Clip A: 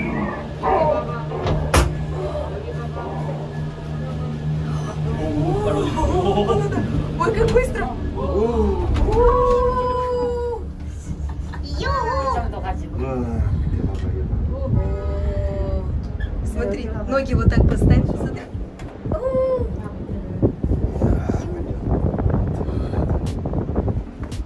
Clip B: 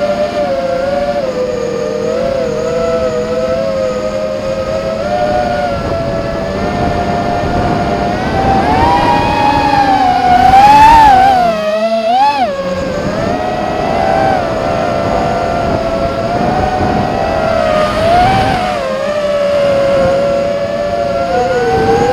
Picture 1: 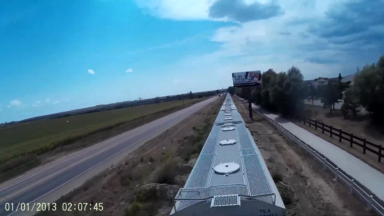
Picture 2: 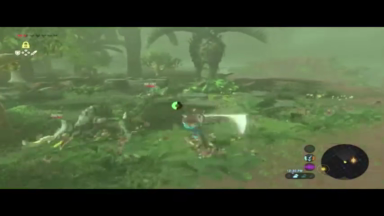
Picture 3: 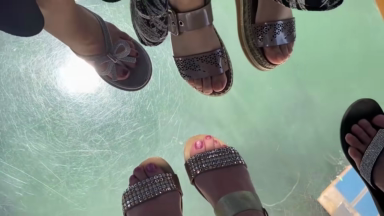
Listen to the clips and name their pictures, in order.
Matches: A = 3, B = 1